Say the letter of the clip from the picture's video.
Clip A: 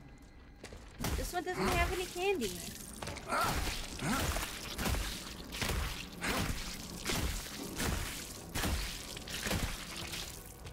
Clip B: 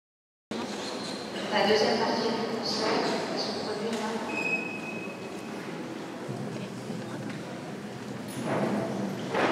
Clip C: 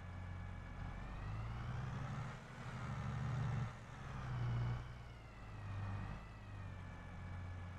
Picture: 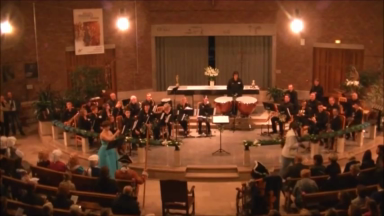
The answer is B